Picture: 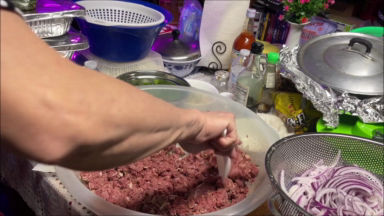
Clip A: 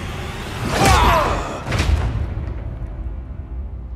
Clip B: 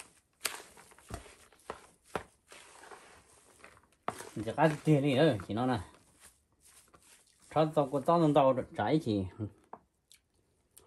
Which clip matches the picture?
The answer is B